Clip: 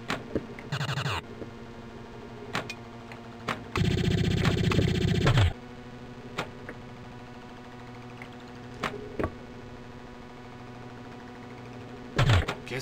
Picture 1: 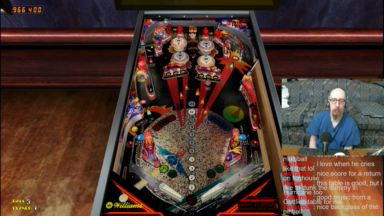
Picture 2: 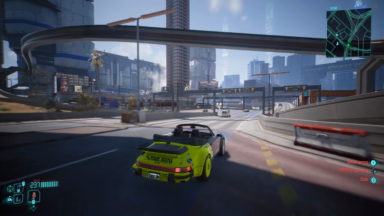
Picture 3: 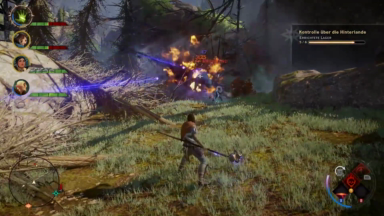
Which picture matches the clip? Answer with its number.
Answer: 1